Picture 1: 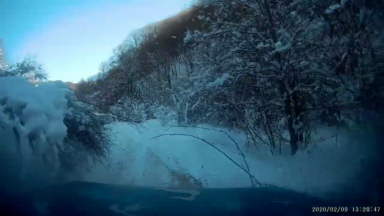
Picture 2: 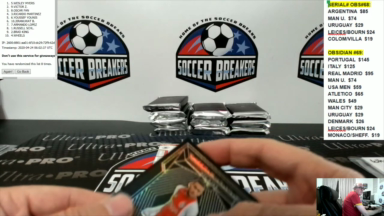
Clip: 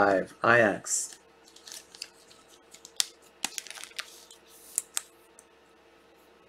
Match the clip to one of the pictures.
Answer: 2